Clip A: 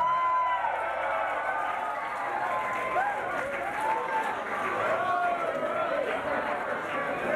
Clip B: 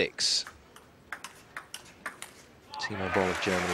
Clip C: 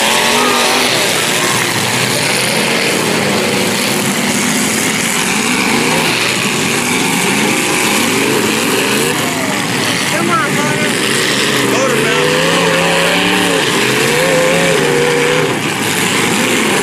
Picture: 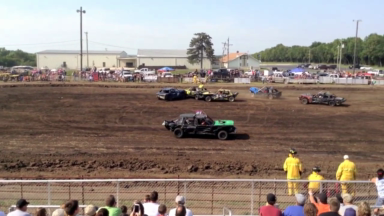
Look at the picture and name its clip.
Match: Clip C